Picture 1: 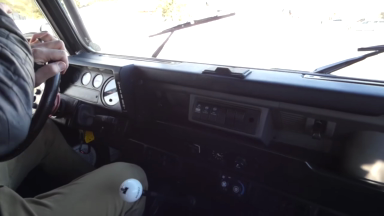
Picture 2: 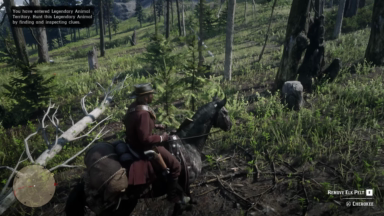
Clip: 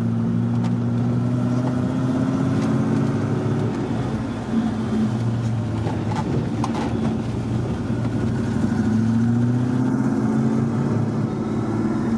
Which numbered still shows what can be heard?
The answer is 1